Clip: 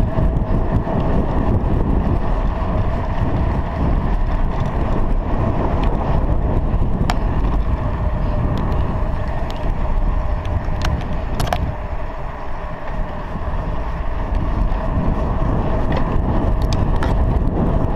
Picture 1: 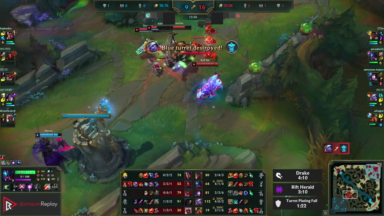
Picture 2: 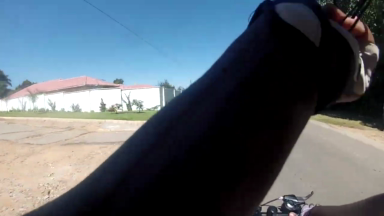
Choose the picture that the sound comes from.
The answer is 2